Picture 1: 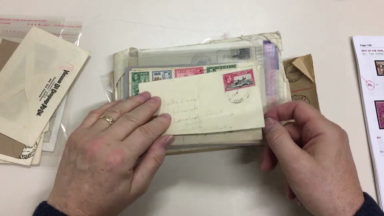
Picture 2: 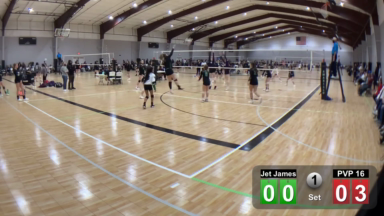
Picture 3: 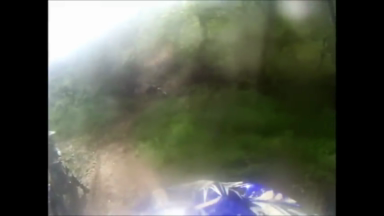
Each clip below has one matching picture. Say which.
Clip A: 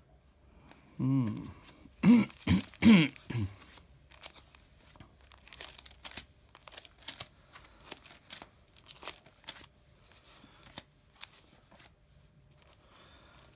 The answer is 1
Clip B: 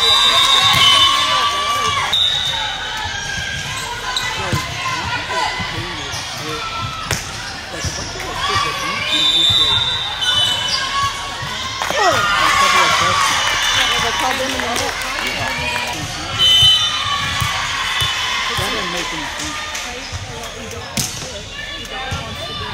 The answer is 2